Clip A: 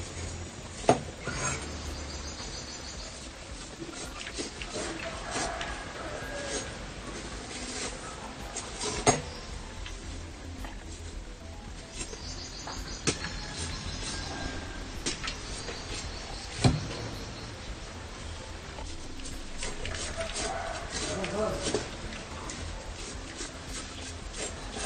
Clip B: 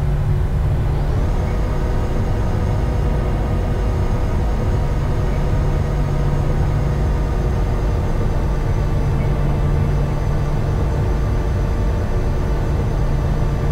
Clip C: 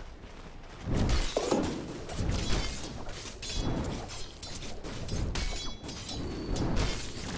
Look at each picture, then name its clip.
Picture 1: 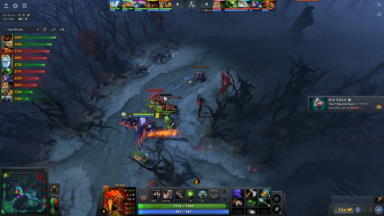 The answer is C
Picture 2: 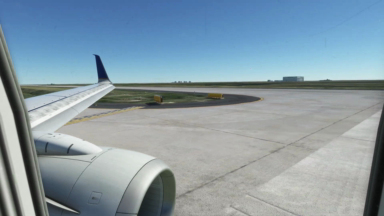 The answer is B